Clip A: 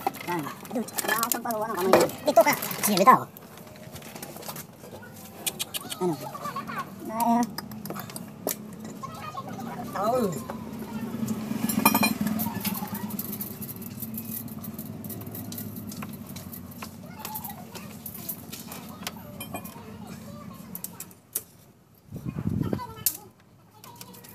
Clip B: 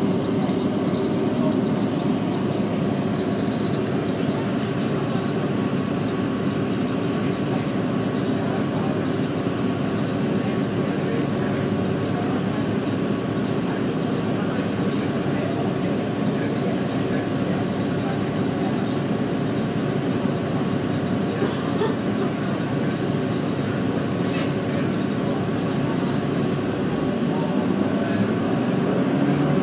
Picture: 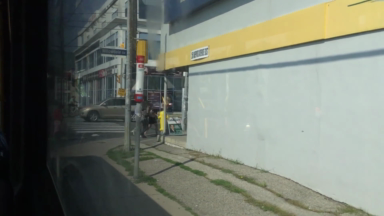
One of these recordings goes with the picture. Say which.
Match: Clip B